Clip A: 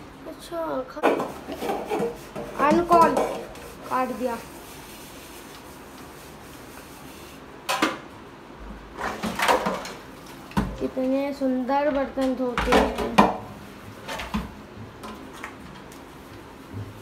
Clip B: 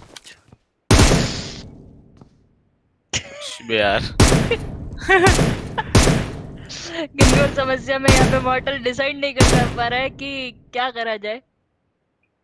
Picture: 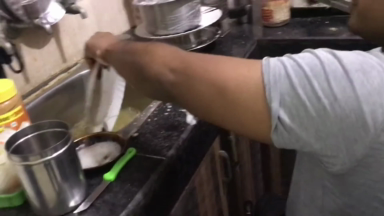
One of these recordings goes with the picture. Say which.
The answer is A